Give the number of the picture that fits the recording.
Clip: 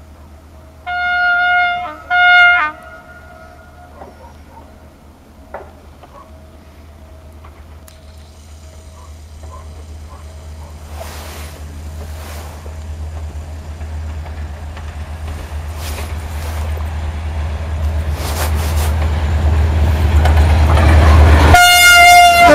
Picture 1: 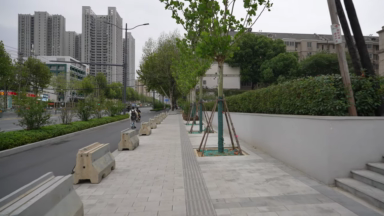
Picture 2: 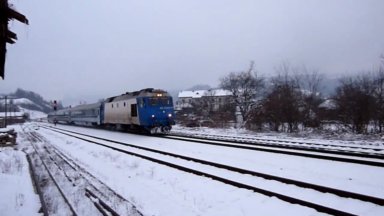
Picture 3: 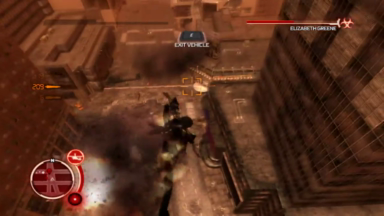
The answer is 2